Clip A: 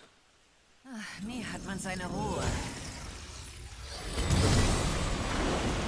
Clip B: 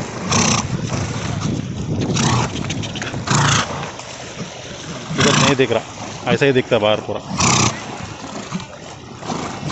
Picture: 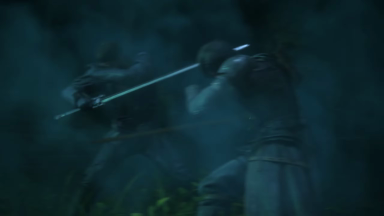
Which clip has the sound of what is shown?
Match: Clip A